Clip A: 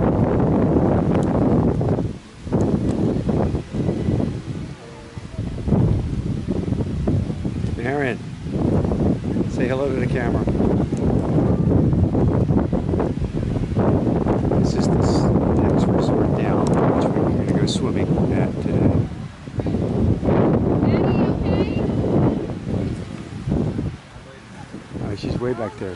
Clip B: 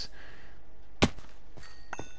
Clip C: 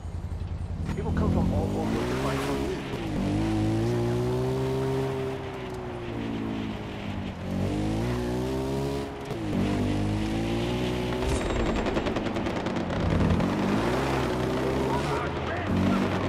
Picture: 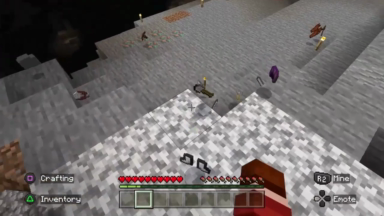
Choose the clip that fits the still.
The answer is B